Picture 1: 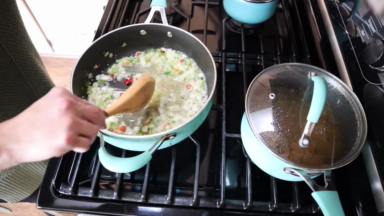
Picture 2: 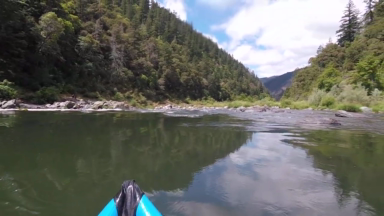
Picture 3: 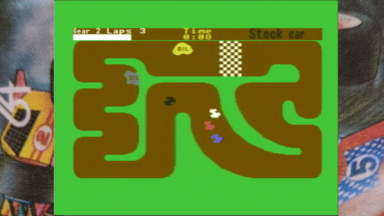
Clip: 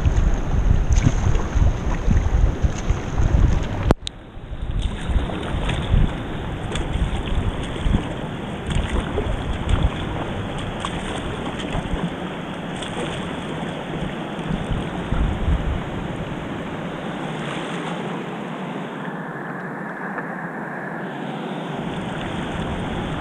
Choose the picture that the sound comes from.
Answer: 2